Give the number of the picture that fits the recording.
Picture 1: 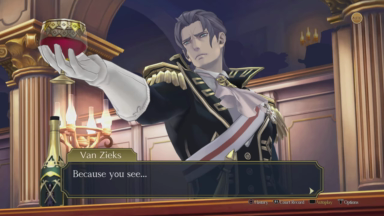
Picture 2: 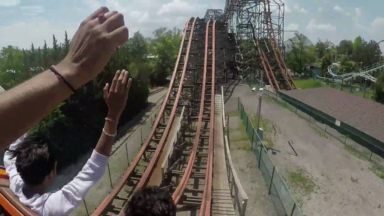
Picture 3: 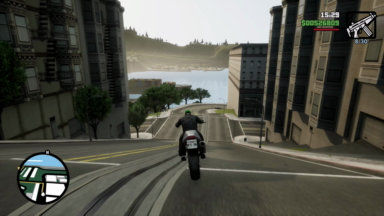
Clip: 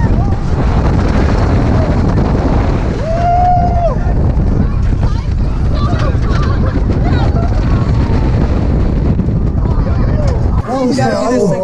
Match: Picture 2